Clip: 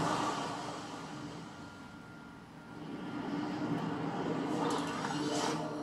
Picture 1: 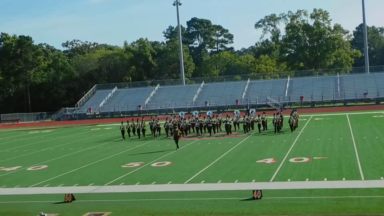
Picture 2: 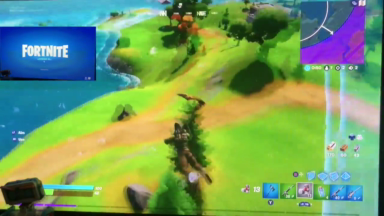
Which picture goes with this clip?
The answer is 2